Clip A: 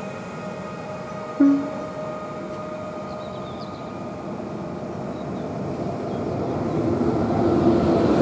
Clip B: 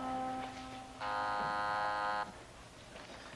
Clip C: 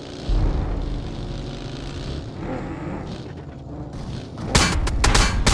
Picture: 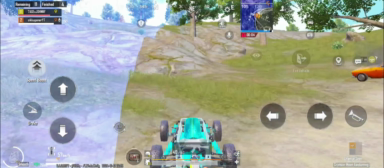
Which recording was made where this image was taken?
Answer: C